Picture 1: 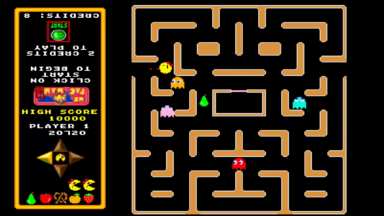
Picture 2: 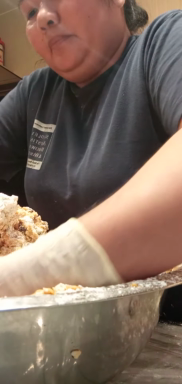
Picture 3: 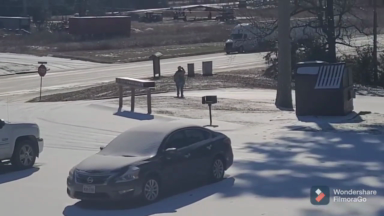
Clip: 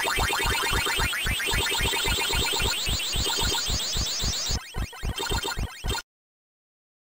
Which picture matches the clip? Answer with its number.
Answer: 1